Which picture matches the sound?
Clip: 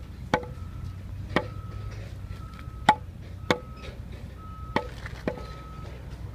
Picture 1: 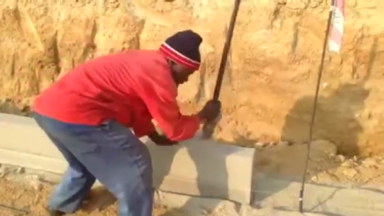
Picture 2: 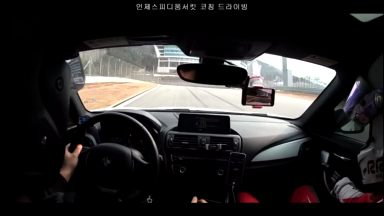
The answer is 1